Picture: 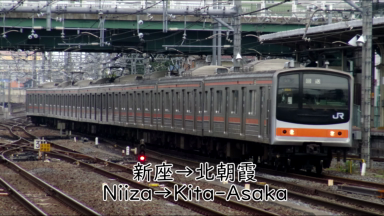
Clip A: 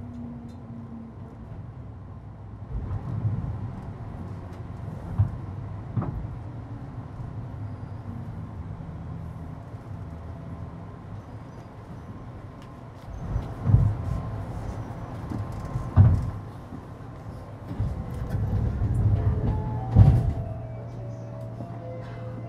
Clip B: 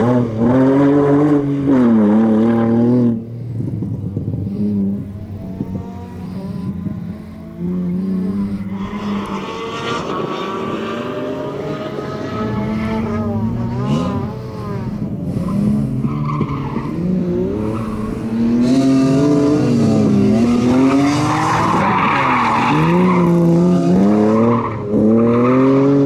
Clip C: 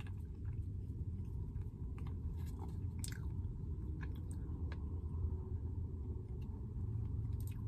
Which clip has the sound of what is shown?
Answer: A